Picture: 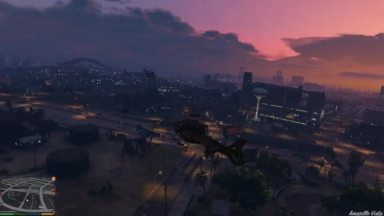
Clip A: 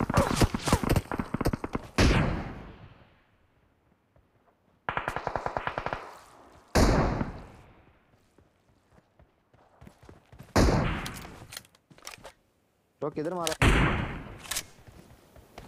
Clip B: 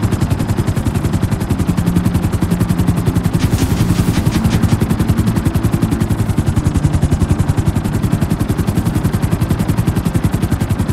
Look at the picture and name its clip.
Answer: B